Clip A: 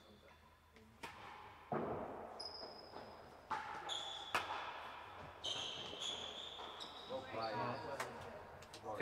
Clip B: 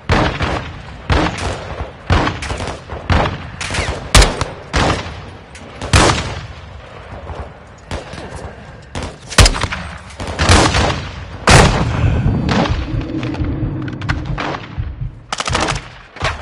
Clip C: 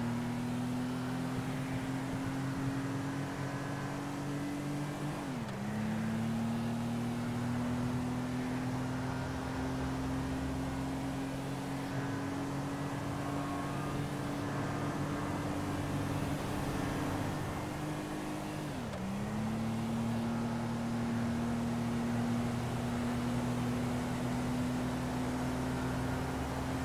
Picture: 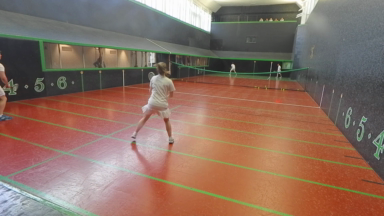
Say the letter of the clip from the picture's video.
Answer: A